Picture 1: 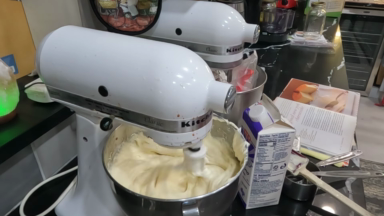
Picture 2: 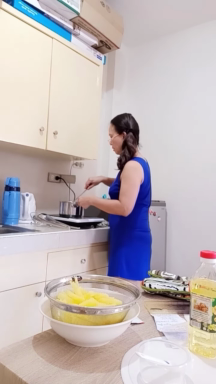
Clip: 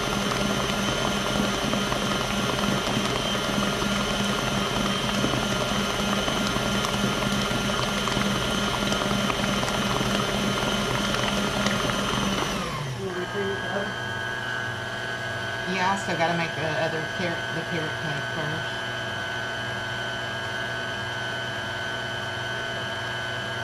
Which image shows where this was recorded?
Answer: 1